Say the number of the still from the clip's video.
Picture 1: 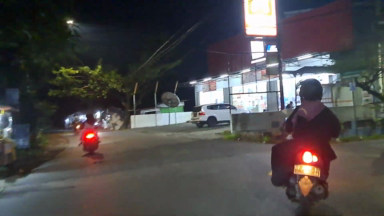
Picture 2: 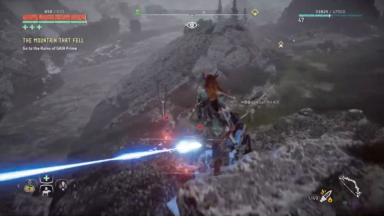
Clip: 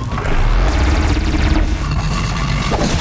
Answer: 2